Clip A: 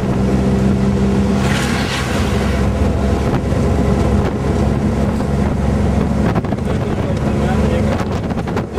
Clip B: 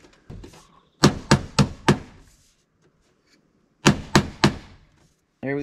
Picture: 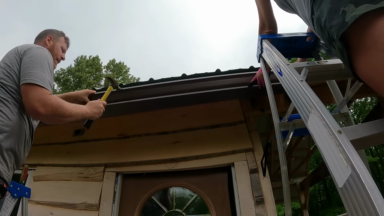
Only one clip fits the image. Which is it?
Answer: B